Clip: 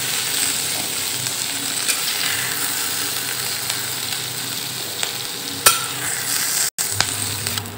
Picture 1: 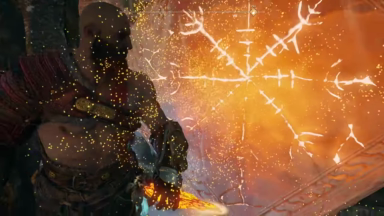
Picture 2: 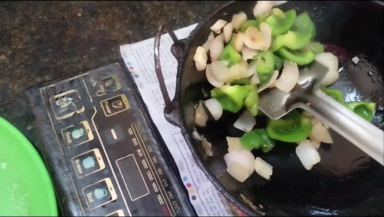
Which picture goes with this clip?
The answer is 2